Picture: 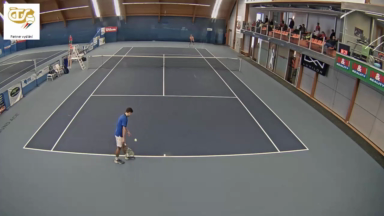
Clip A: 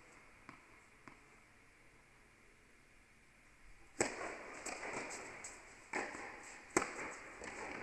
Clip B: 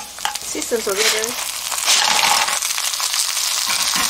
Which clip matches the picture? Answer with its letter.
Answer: A